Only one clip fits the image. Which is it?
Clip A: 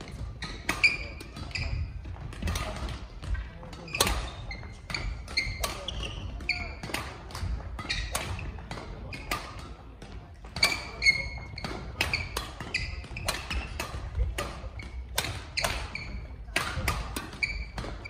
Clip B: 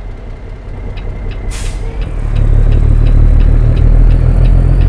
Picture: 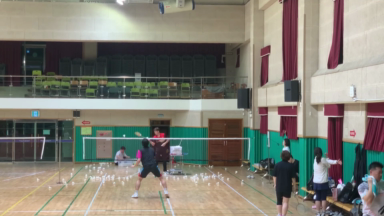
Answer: A